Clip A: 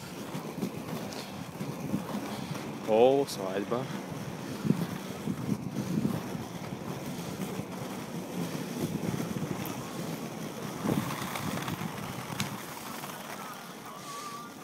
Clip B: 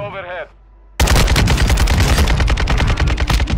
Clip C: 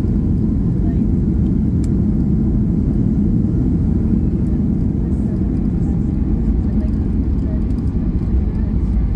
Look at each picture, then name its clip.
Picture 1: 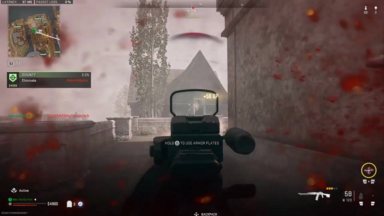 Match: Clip B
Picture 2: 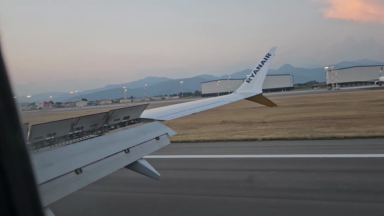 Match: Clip C